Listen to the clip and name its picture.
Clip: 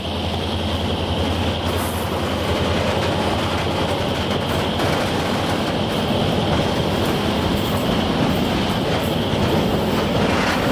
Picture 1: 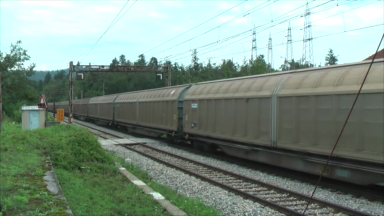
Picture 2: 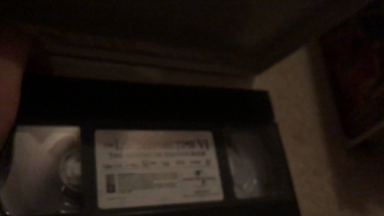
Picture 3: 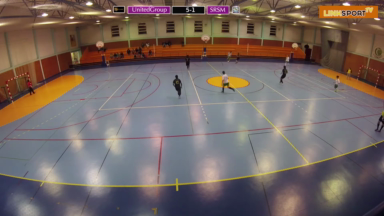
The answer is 1